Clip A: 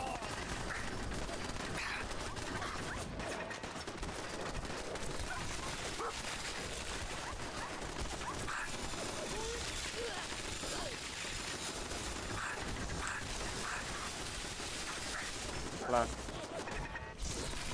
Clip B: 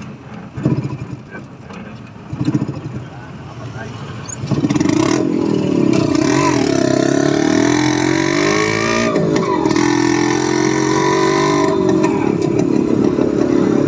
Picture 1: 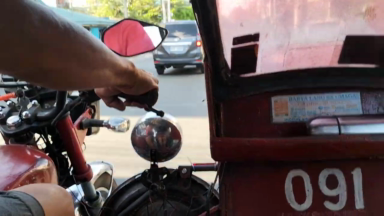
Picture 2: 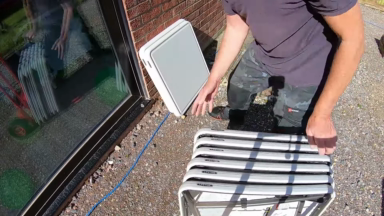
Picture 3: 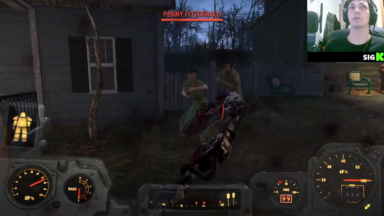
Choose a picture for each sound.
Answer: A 3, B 1